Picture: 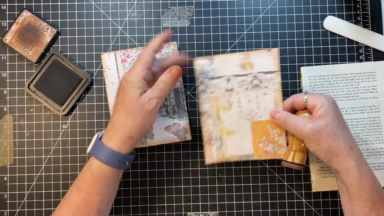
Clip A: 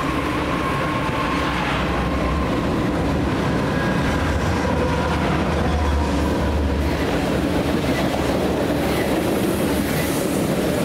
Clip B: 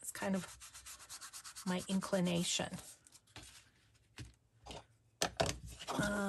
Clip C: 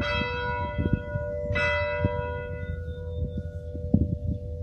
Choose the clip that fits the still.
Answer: B